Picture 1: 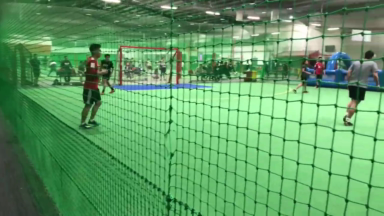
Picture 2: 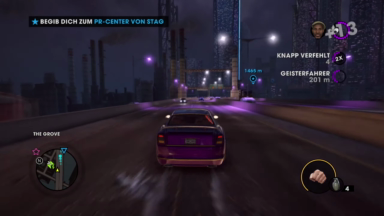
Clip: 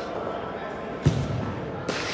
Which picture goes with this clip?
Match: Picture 1